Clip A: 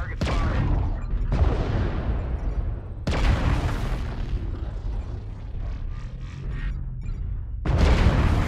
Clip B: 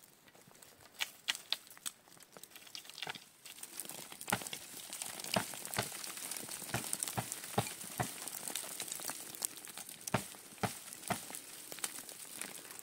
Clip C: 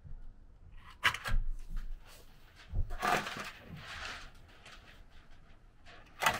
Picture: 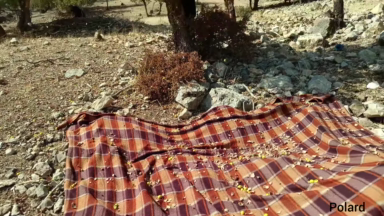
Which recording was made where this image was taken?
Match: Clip B